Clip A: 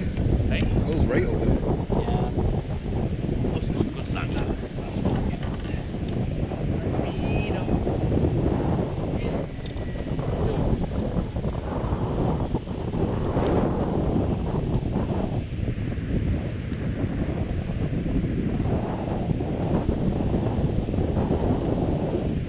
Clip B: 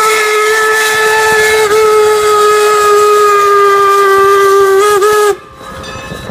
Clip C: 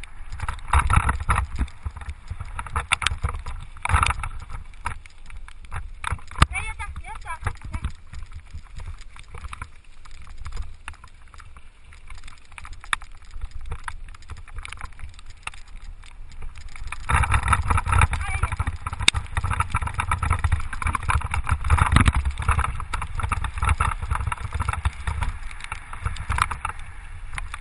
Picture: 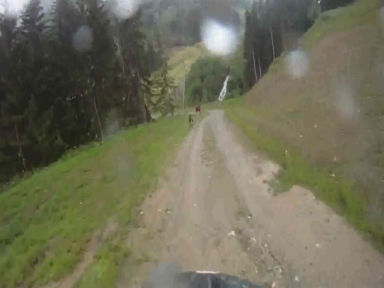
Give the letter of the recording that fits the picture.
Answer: C